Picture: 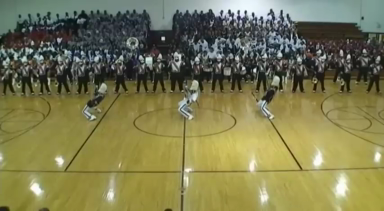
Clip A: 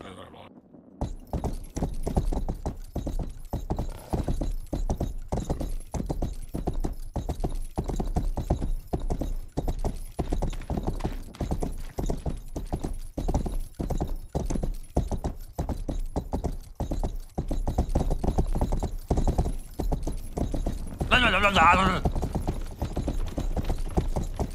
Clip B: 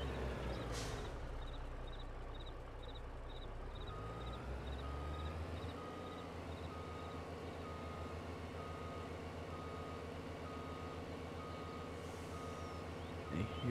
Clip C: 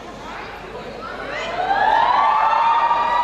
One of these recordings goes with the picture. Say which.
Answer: C